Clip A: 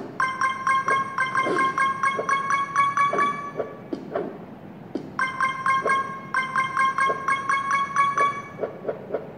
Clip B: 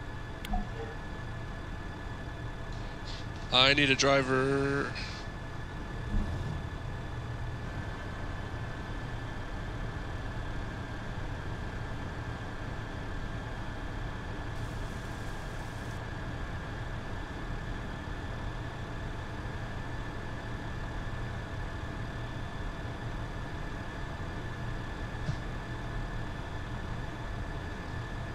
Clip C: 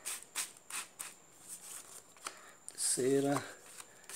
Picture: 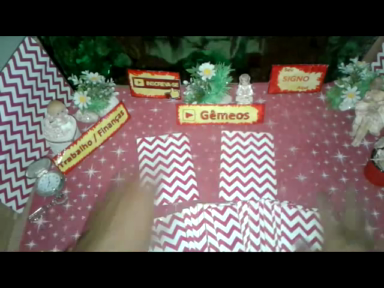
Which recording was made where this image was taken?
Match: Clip C